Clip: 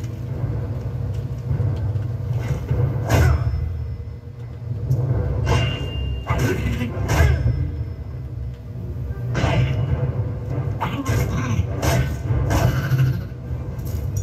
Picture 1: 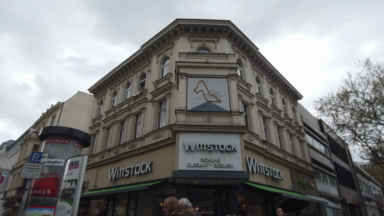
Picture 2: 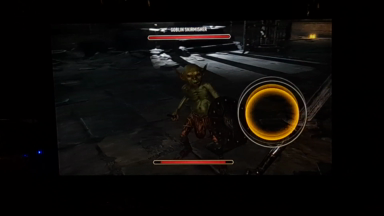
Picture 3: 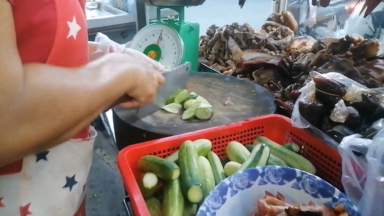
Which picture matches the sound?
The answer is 2